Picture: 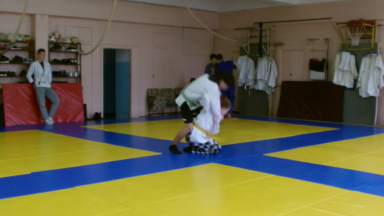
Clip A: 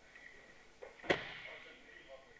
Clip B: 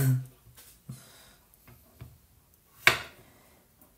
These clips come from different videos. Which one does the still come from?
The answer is A